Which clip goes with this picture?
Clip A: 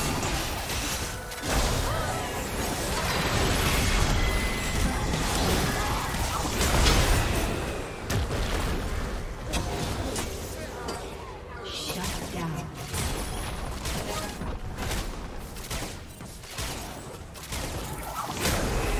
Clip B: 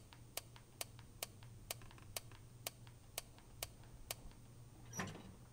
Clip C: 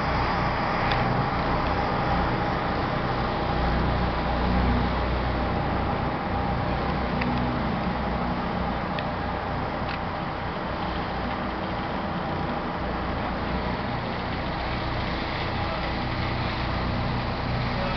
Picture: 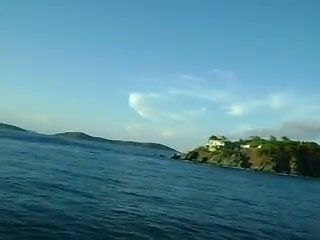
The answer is C